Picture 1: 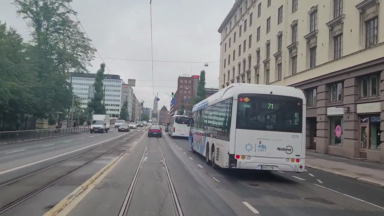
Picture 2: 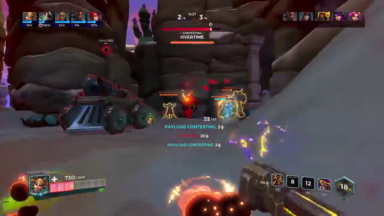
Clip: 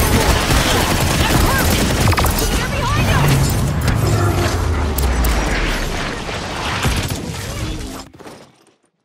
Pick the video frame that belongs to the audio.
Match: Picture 2